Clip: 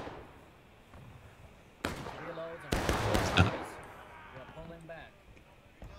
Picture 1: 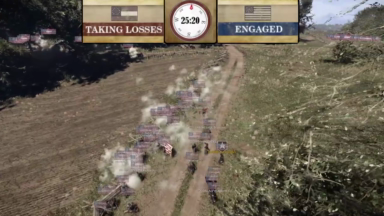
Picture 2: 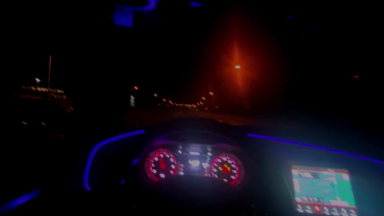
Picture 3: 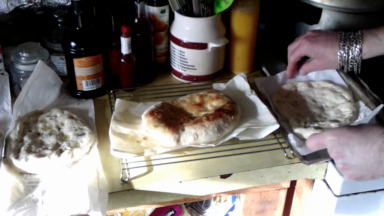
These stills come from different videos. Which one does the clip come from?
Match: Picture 1